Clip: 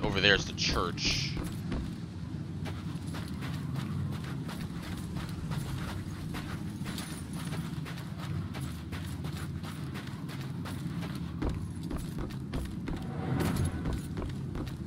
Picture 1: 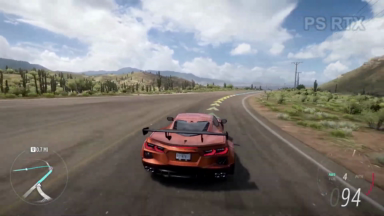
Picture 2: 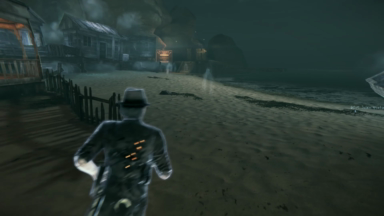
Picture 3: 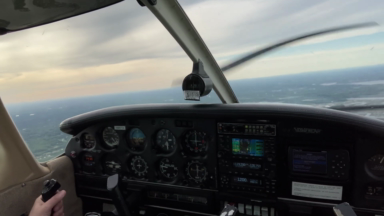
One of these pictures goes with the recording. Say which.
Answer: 2